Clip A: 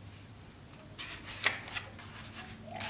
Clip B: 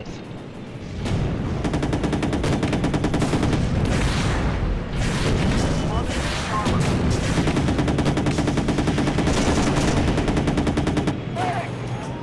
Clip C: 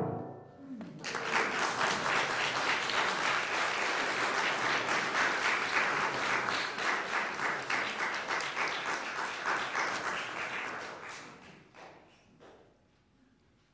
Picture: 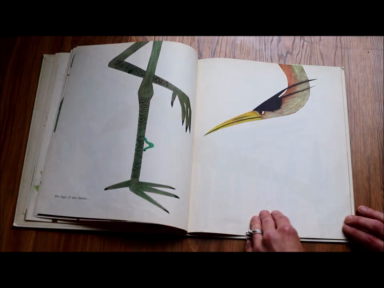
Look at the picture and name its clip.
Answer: A